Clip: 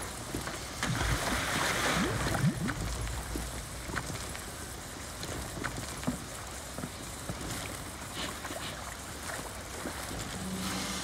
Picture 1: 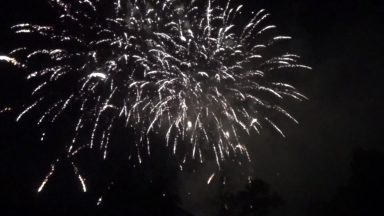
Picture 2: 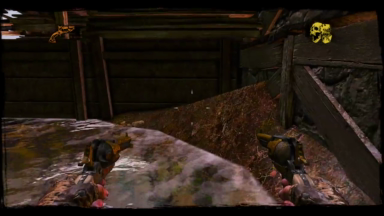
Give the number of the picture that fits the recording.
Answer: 2